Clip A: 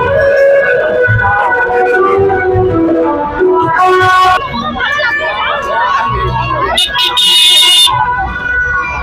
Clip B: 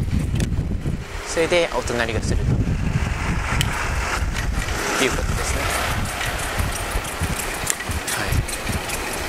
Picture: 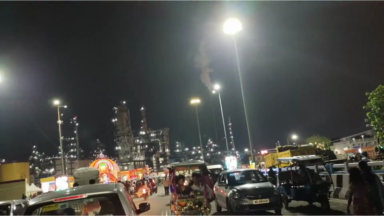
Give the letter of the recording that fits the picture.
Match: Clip A